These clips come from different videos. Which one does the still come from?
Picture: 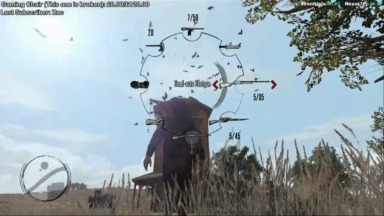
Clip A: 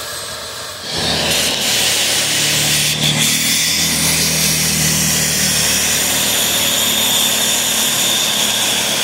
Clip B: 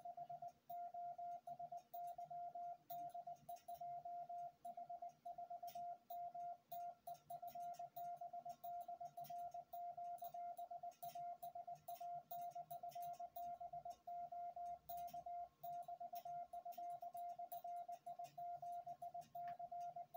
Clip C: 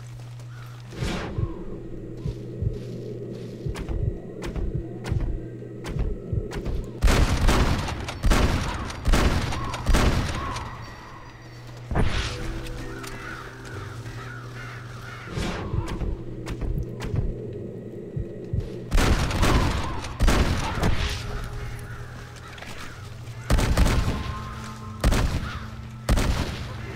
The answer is C